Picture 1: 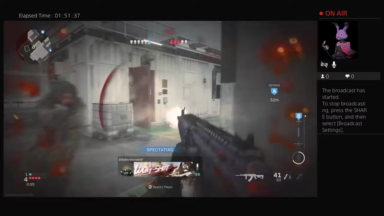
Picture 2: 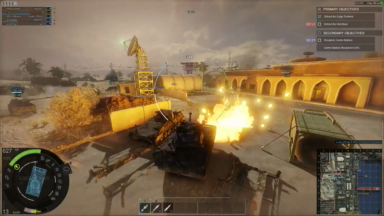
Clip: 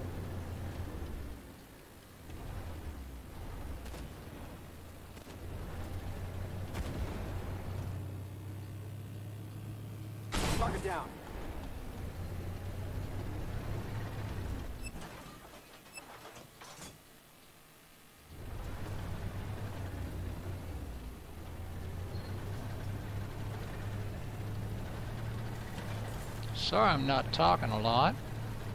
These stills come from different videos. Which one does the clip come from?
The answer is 2